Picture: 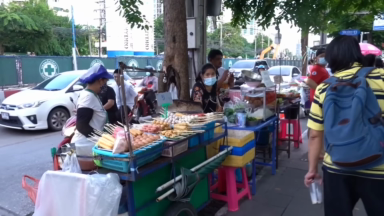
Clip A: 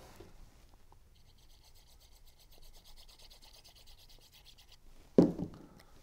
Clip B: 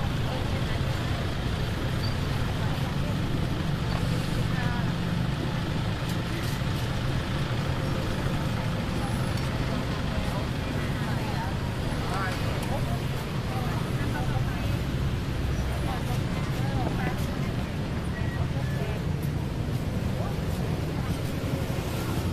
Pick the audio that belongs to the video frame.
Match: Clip B